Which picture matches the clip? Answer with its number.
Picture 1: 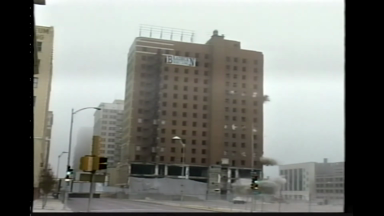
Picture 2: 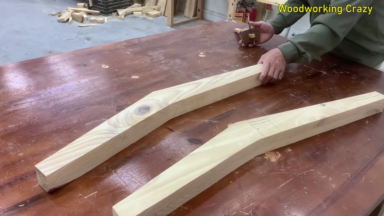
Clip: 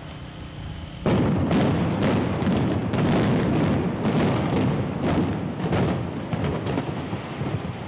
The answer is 1